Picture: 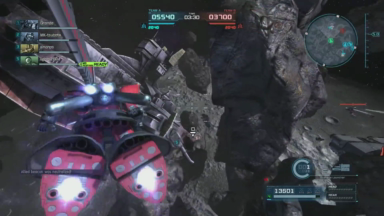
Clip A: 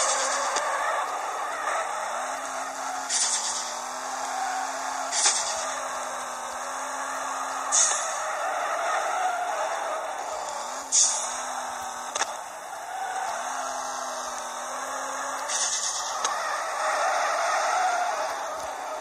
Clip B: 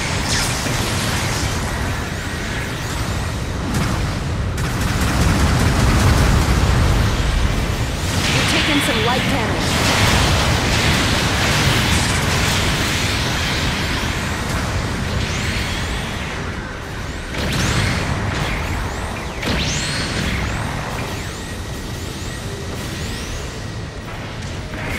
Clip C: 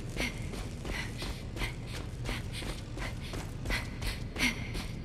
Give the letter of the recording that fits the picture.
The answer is B